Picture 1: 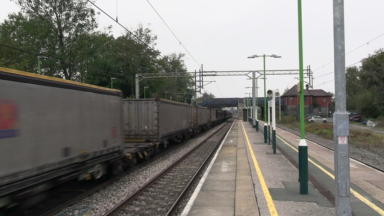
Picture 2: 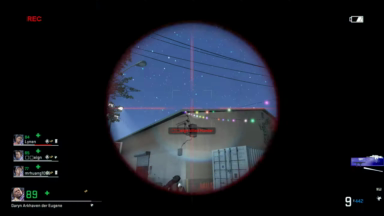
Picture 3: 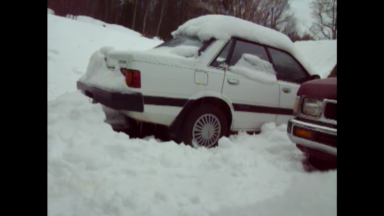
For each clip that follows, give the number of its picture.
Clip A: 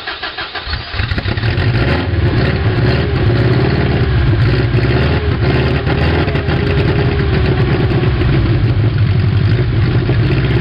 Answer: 3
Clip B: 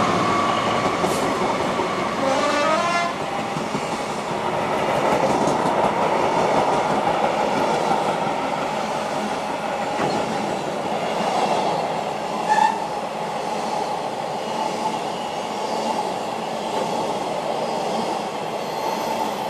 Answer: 1